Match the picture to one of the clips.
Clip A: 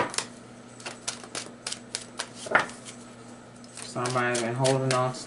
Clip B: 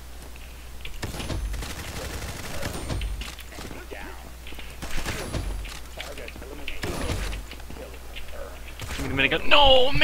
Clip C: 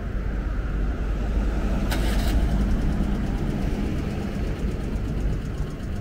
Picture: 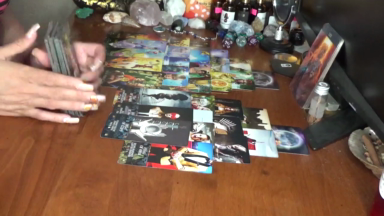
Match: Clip A